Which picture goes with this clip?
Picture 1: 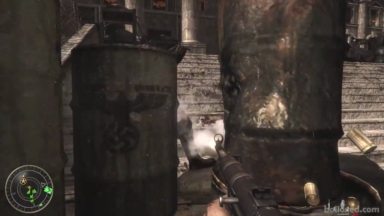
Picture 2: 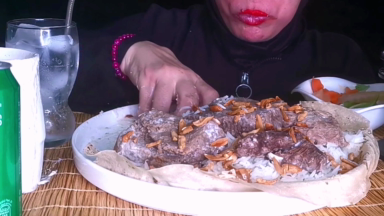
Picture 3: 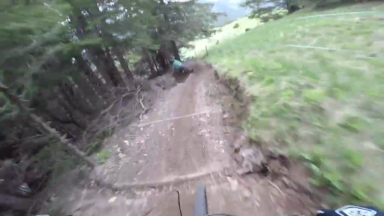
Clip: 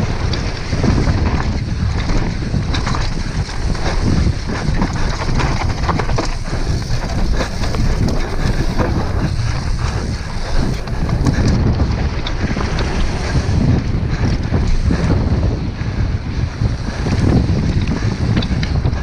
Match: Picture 3